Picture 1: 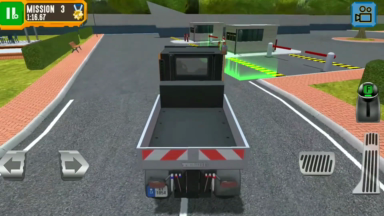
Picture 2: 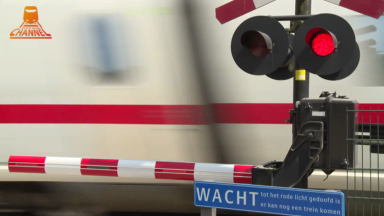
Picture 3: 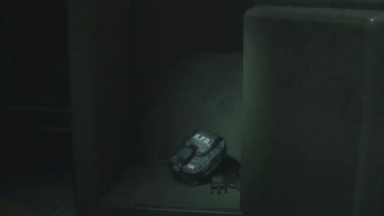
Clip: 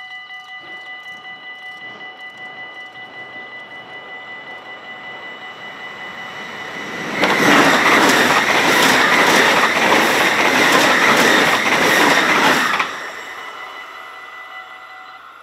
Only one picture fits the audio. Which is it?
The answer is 2